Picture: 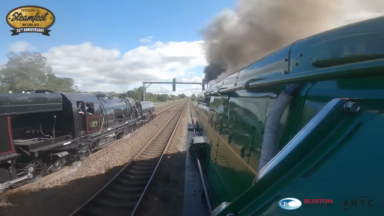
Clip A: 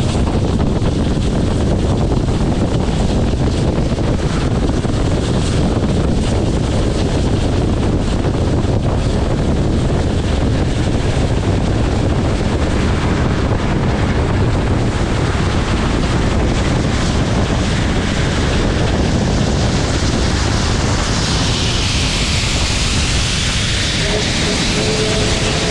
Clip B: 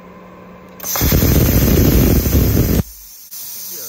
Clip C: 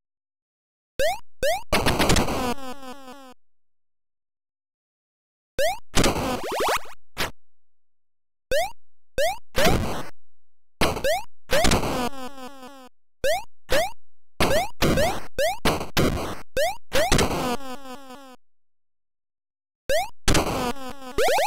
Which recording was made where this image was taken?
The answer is A